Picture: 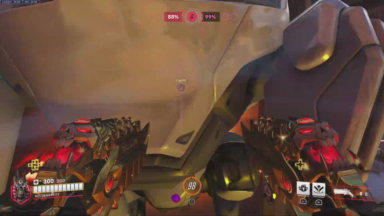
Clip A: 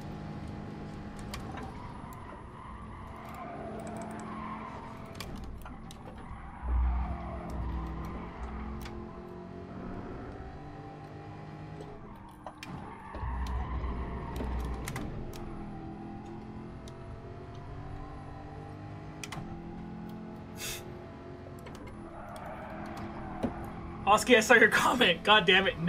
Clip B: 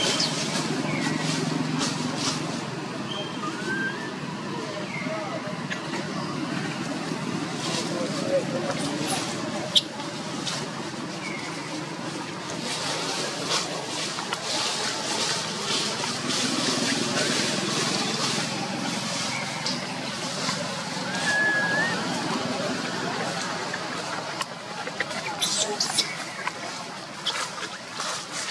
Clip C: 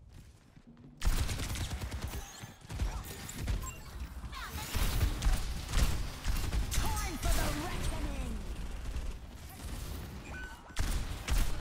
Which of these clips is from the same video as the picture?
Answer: C